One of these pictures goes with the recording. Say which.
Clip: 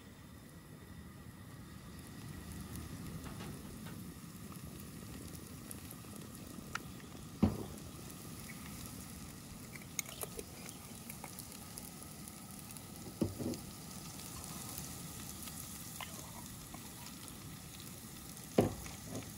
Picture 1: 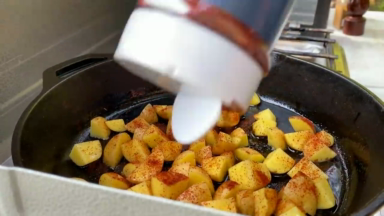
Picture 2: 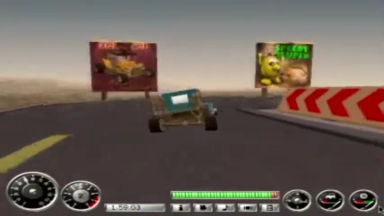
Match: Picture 1